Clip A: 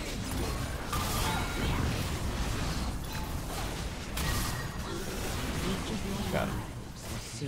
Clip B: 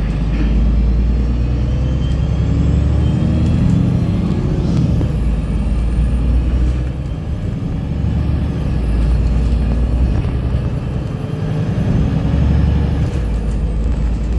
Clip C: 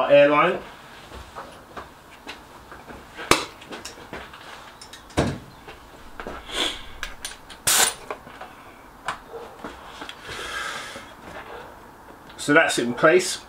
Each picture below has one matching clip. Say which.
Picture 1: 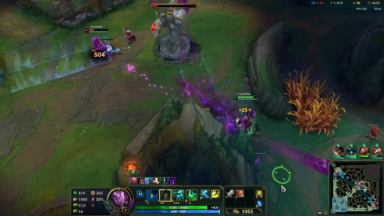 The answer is A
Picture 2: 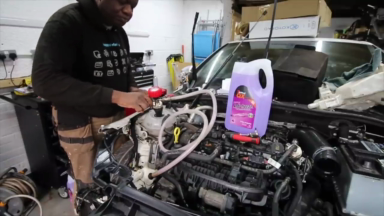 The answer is C